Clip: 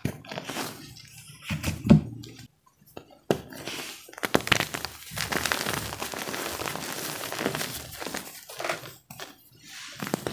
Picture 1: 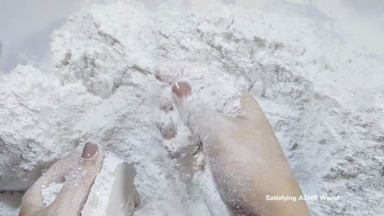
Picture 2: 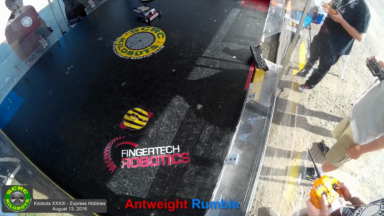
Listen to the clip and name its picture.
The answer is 1